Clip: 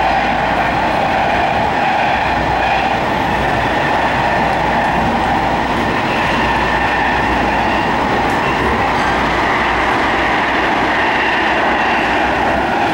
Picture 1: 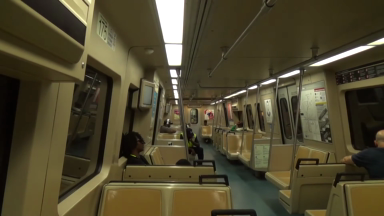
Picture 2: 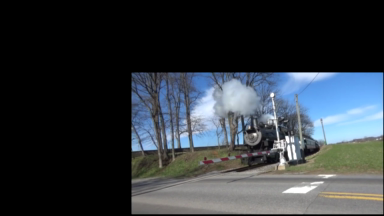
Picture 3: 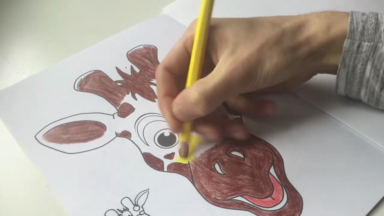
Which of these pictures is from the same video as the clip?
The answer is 1